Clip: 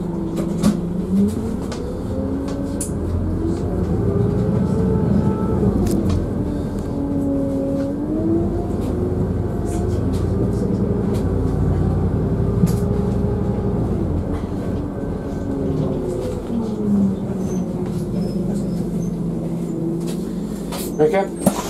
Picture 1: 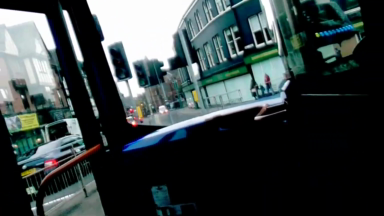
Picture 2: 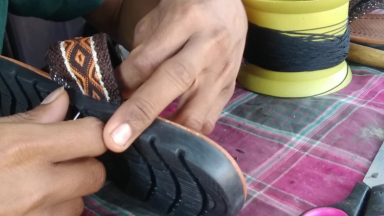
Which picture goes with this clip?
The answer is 1